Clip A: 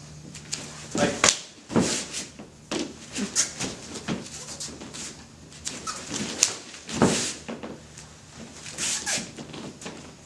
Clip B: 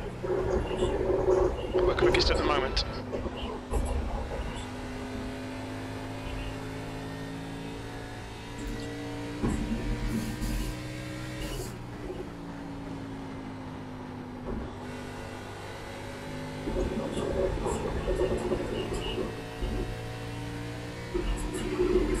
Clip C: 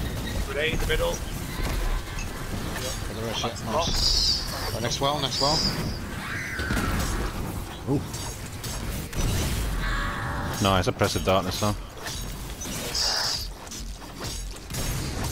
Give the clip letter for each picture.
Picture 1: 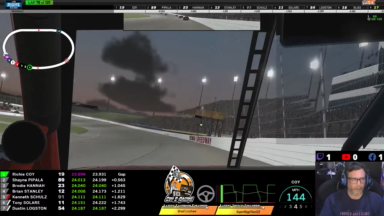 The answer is B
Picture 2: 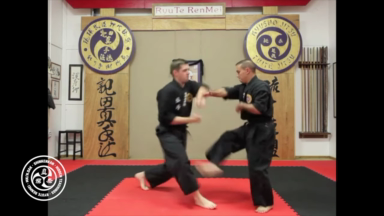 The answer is A